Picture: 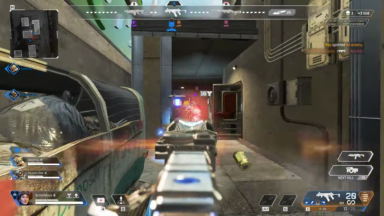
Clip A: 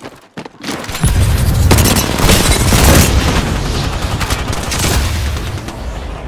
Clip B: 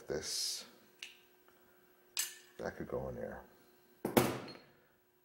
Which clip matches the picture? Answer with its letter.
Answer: A